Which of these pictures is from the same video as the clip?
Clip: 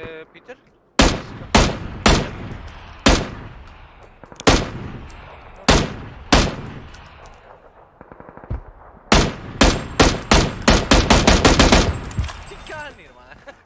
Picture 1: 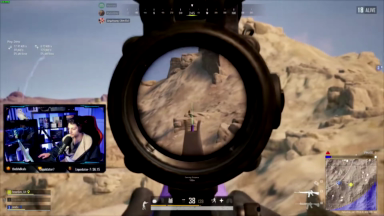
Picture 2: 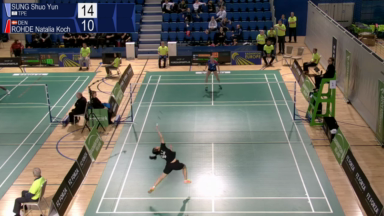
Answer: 1